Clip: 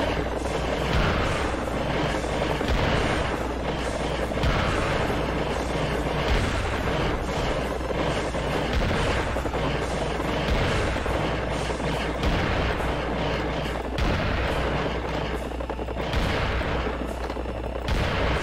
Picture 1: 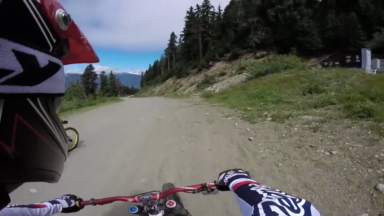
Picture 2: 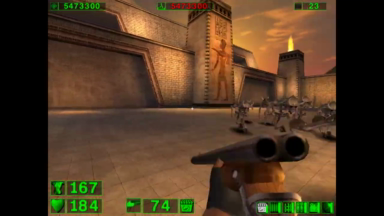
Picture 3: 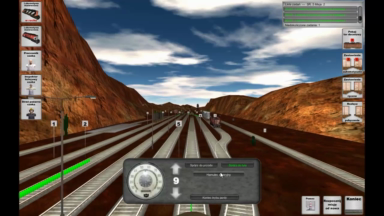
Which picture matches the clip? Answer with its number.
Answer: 2